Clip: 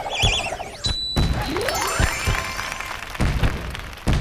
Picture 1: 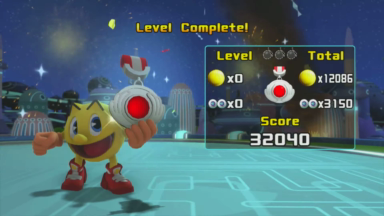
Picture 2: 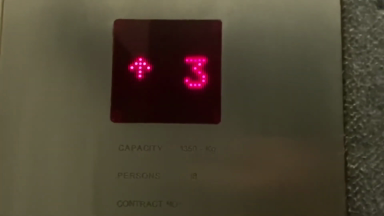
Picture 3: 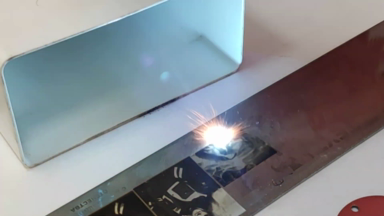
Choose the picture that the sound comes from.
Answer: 1